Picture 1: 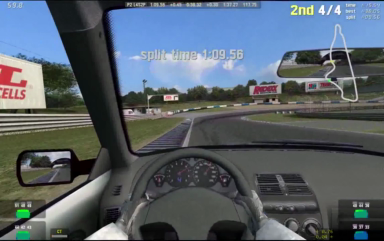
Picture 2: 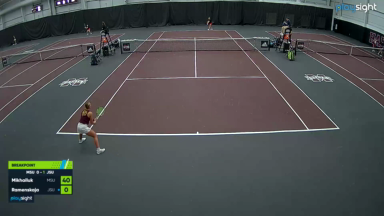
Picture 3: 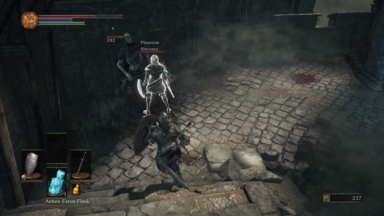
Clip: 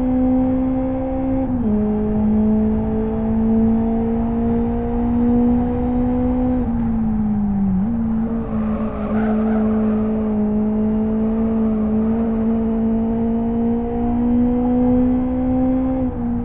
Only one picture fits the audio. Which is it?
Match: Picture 1